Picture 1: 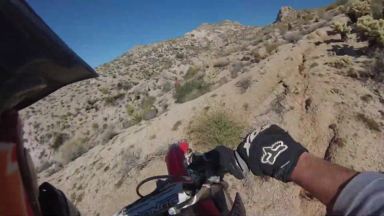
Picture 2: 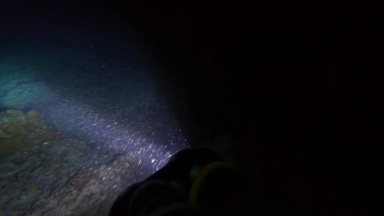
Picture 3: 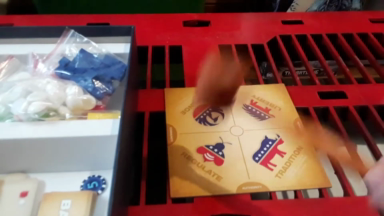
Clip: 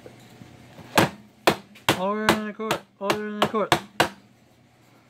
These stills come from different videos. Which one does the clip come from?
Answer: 3